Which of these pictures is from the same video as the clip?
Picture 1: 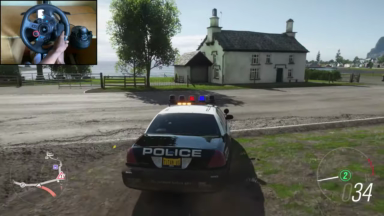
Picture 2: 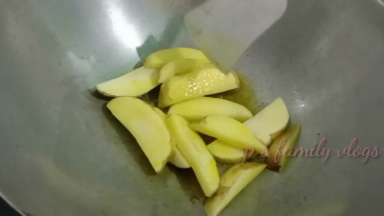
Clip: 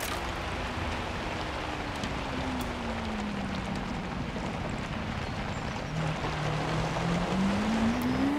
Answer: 1